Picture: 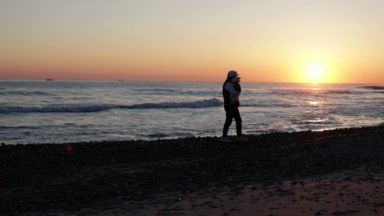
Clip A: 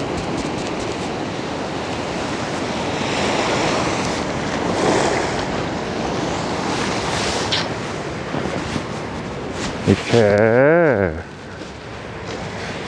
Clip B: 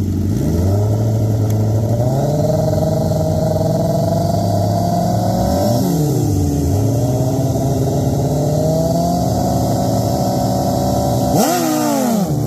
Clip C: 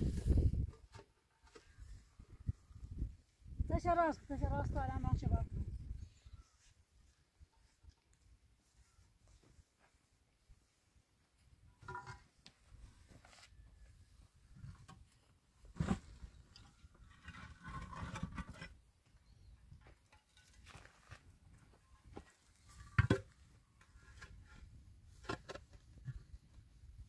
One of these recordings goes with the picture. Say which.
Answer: A